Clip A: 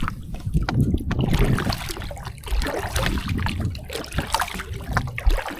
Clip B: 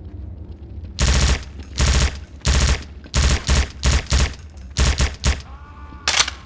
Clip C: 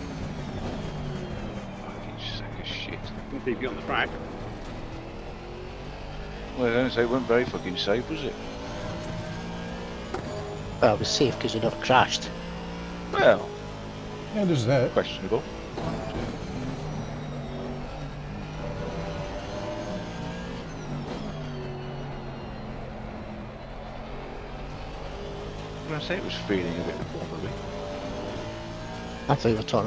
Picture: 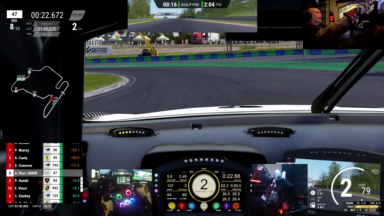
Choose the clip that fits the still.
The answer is C